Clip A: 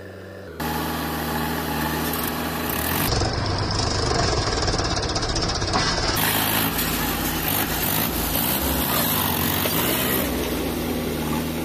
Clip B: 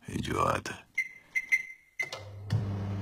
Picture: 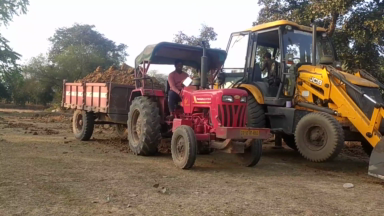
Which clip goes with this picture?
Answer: A